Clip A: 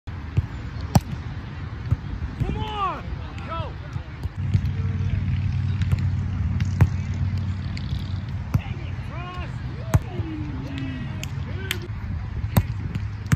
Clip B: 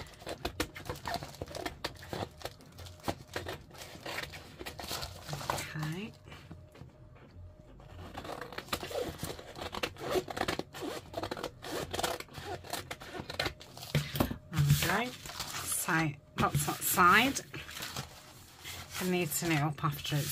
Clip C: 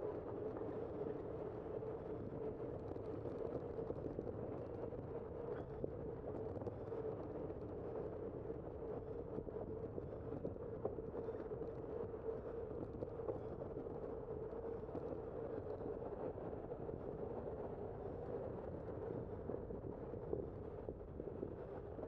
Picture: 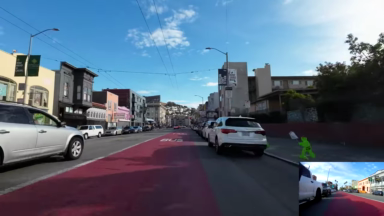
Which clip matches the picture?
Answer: C